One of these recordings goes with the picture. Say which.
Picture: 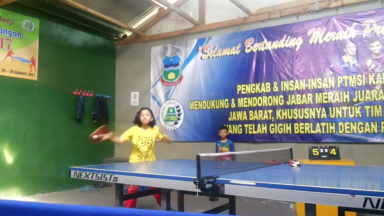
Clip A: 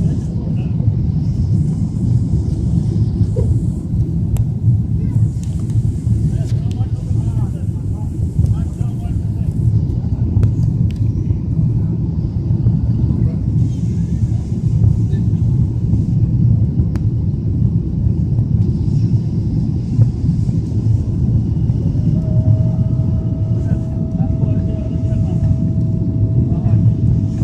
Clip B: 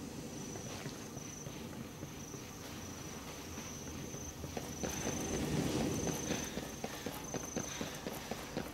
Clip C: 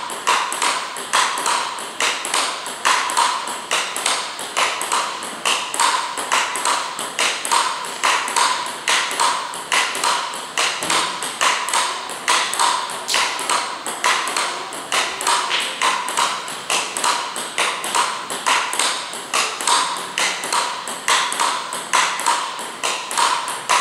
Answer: C